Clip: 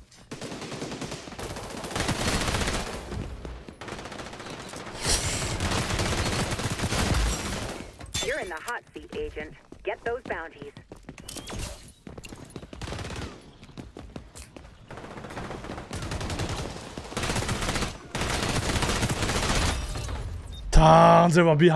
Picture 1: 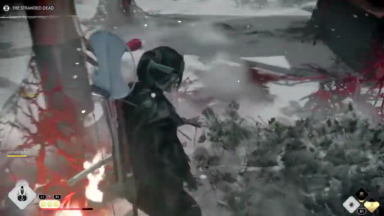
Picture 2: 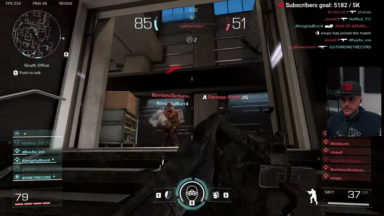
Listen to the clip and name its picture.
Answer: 2